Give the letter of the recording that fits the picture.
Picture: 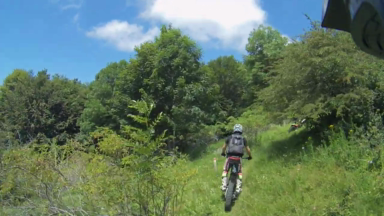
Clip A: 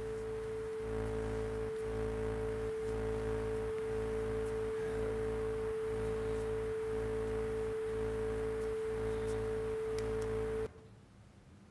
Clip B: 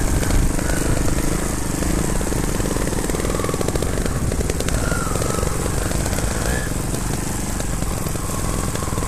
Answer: B